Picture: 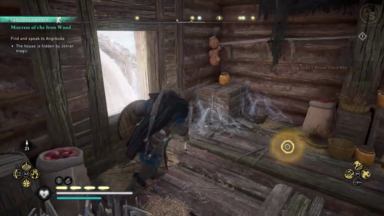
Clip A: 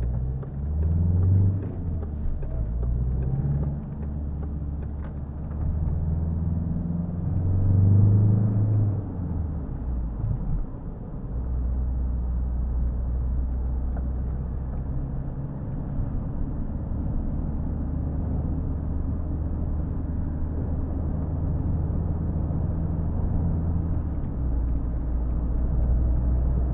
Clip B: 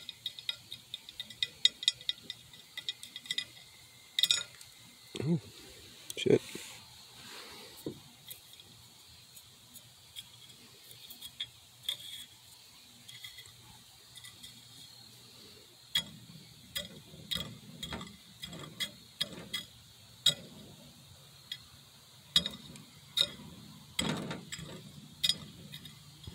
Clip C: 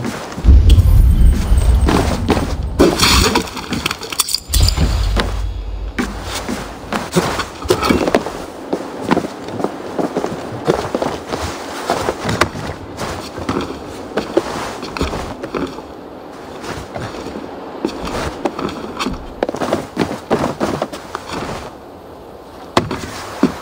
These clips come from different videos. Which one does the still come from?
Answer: C